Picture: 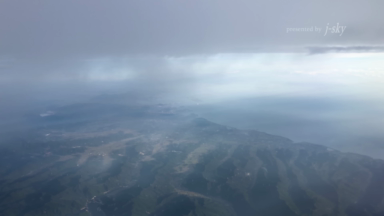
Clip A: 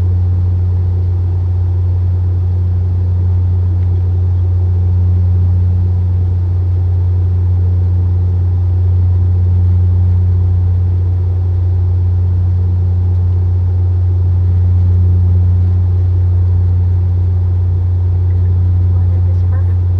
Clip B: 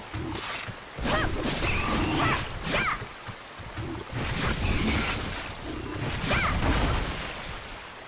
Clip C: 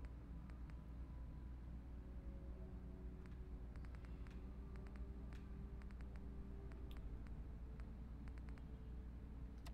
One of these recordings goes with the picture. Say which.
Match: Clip A